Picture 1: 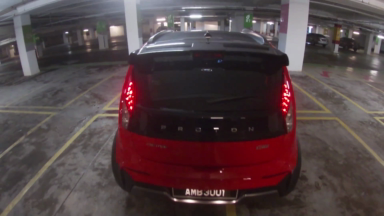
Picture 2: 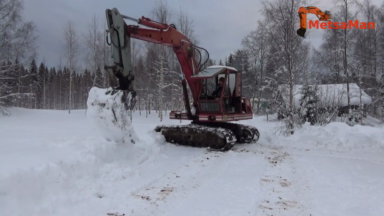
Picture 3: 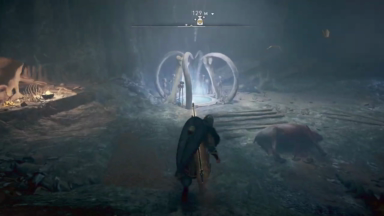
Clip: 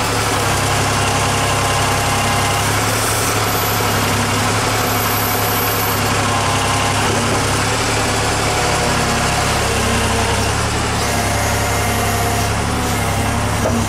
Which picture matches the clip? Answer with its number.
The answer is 2